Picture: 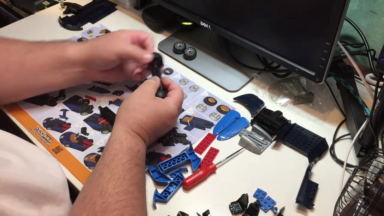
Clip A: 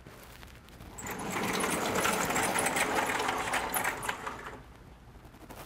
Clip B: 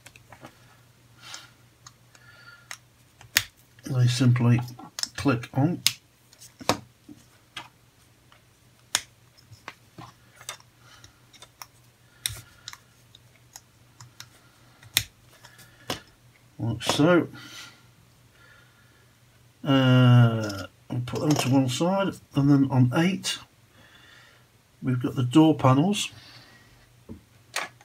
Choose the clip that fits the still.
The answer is B